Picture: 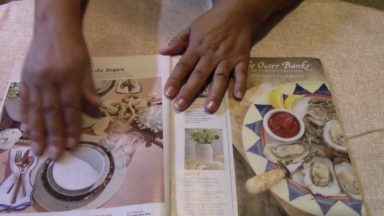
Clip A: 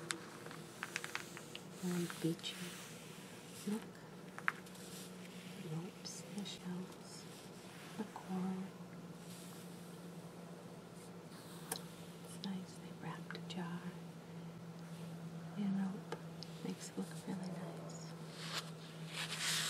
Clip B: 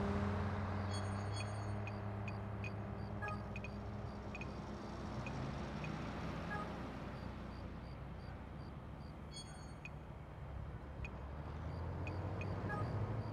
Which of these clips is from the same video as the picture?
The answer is A